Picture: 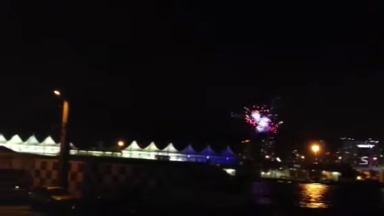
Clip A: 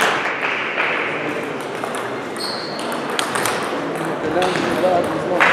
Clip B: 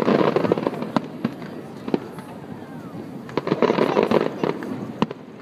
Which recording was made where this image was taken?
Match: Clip B